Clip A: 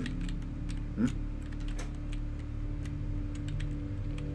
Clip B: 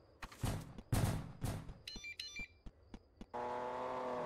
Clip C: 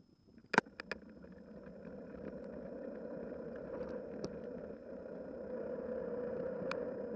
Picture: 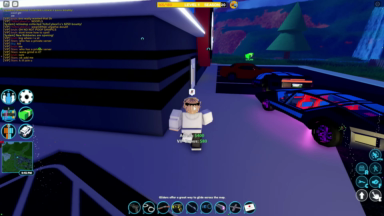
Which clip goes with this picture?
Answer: B